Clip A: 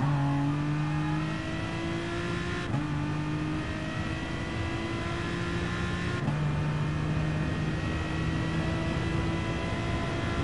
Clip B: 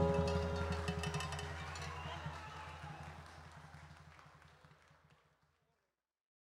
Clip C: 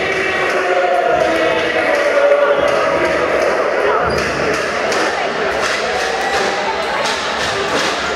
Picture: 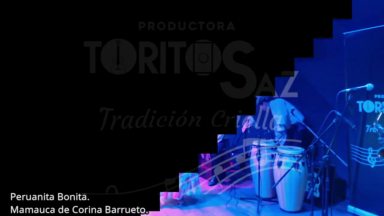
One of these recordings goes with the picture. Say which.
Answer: B